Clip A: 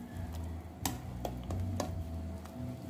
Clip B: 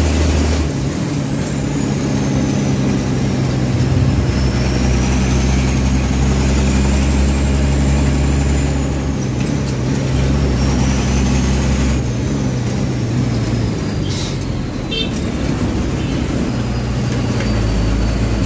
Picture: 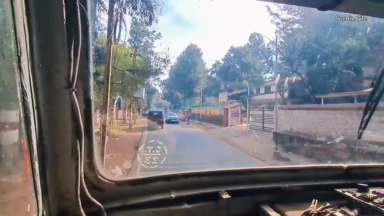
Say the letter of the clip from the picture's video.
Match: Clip B